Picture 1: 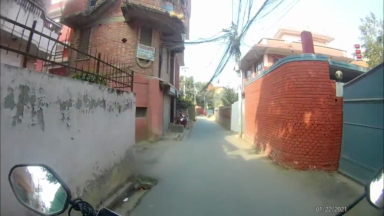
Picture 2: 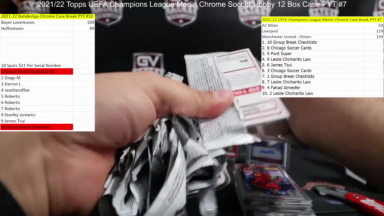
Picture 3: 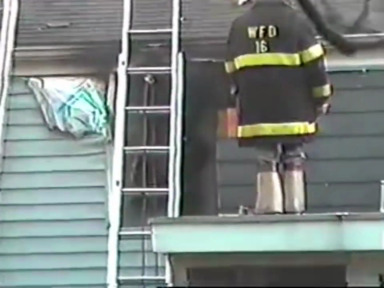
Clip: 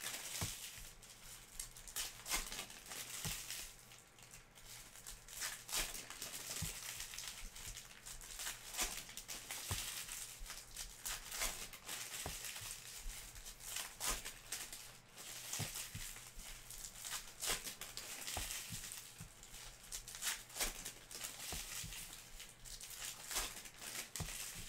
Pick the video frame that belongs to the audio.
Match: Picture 2